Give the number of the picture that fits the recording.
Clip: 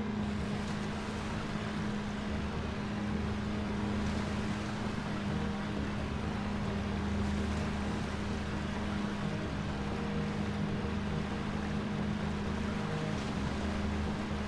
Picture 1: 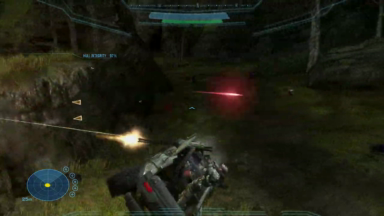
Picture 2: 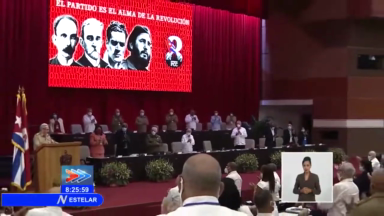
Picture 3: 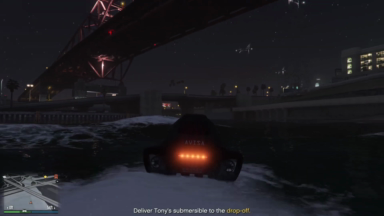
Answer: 3